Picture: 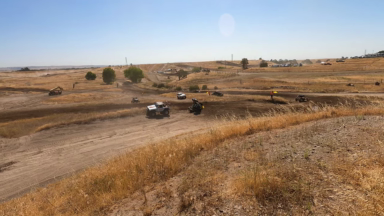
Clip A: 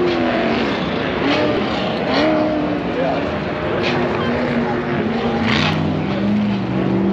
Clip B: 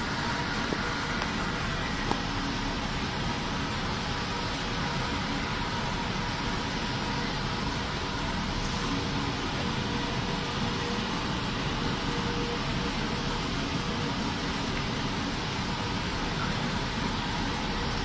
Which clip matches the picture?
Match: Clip A